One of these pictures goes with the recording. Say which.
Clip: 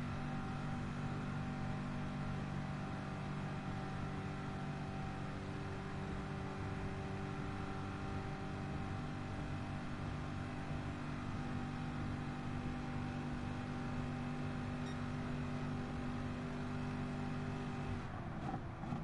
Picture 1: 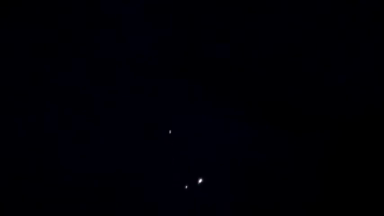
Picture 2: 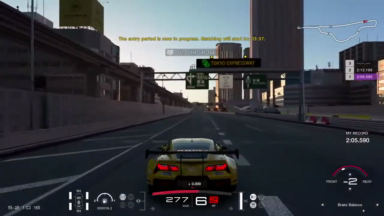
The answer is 2